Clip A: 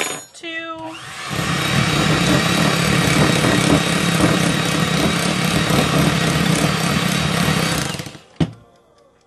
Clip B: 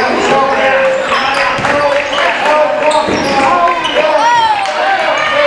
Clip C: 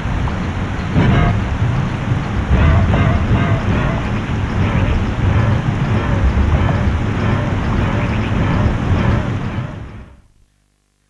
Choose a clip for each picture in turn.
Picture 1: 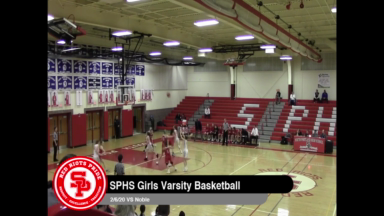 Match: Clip B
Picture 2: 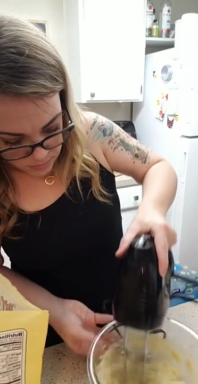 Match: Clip A